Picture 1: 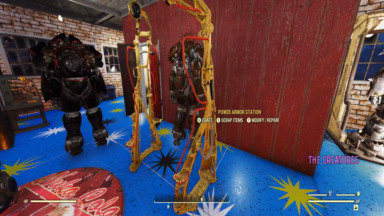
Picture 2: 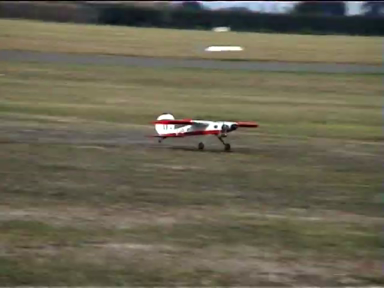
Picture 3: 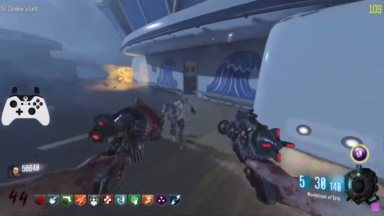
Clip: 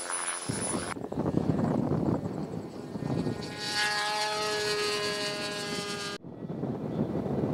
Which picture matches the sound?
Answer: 2